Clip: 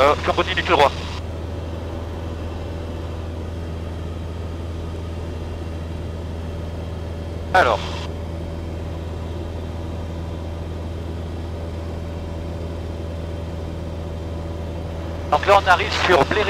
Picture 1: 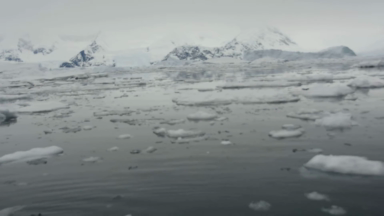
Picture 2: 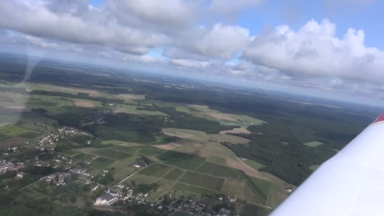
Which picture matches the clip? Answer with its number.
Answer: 2